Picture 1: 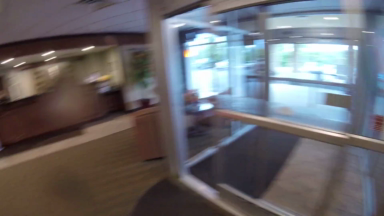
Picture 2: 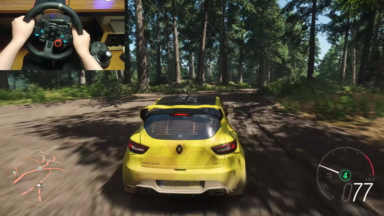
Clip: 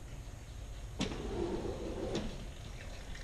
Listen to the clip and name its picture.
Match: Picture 1